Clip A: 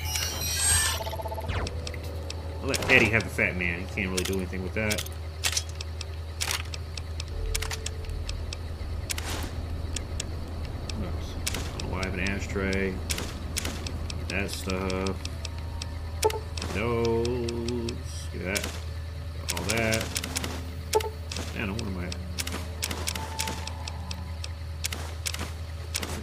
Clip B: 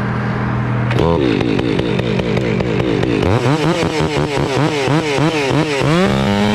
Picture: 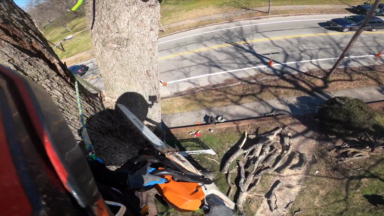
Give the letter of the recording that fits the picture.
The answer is B